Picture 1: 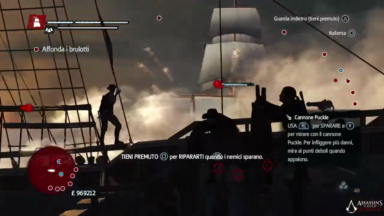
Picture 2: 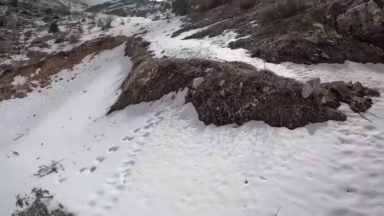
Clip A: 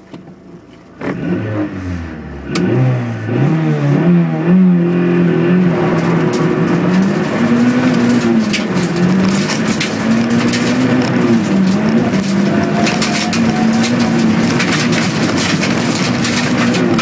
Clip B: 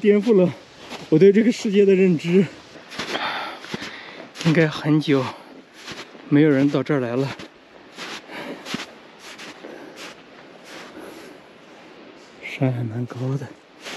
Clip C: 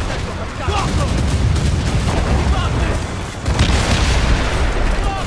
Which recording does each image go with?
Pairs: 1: C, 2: B